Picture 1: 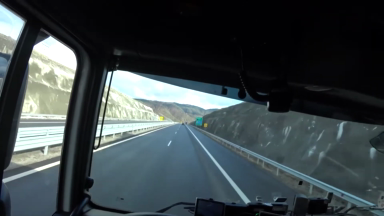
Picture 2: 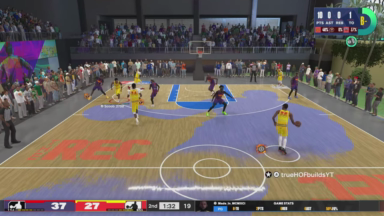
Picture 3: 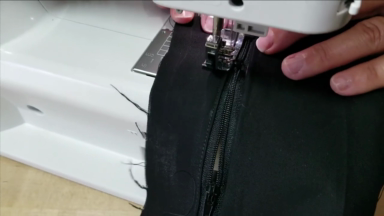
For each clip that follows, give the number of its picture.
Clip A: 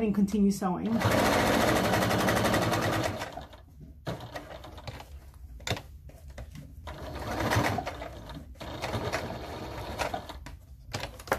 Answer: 3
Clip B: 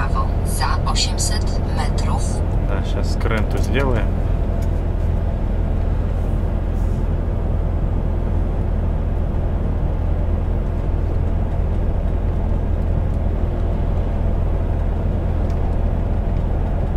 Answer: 1